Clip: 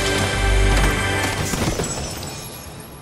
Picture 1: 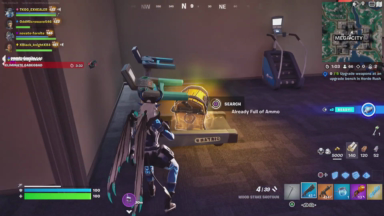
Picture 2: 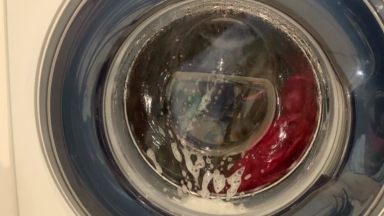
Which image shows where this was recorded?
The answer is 1